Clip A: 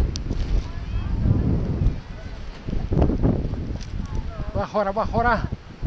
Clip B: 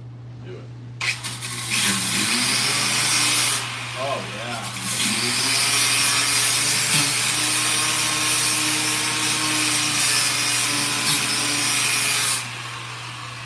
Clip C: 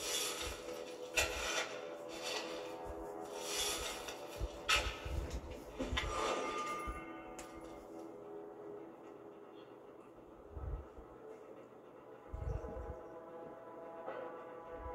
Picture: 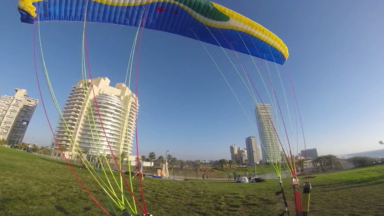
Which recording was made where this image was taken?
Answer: A